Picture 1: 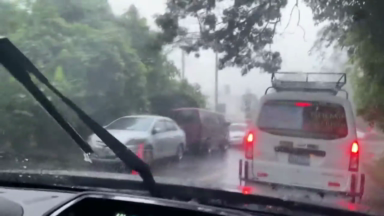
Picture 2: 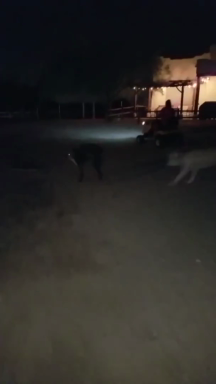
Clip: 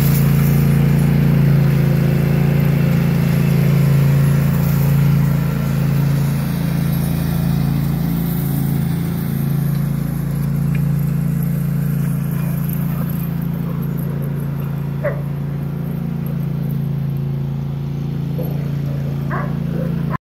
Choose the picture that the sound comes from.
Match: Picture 2